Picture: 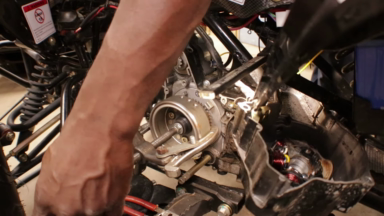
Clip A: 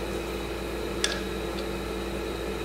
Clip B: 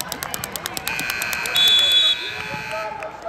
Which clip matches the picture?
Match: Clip A